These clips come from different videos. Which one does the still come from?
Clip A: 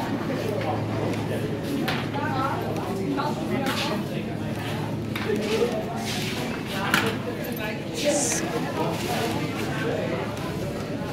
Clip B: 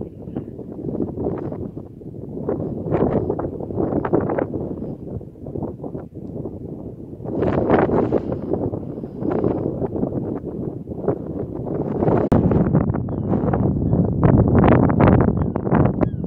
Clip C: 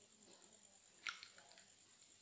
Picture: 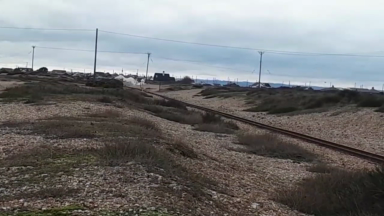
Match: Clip B